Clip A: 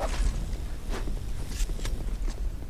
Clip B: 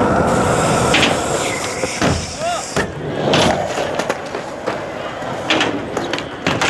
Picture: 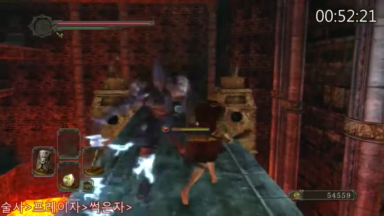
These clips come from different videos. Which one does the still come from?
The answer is A